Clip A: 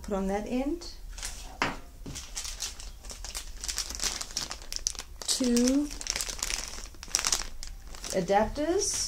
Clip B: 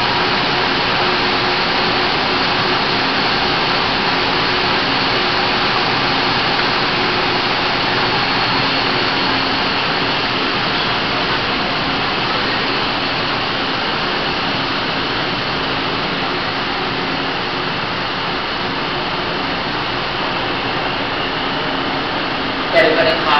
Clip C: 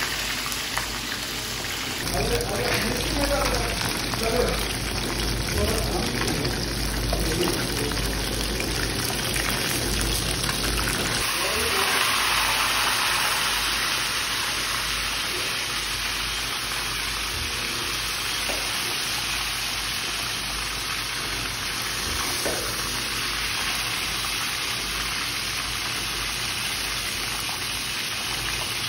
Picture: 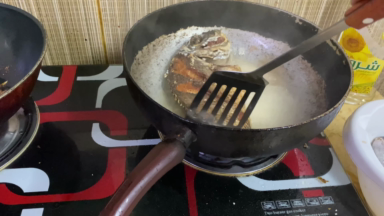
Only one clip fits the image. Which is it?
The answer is C